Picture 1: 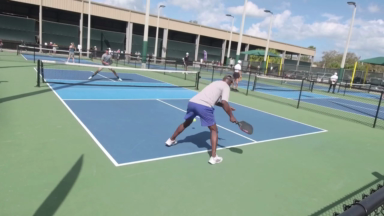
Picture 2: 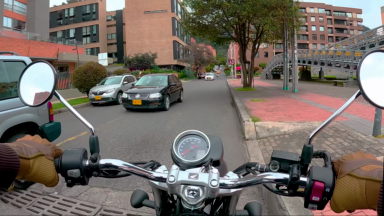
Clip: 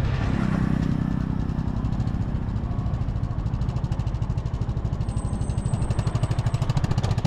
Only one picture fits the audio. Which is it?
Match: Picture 2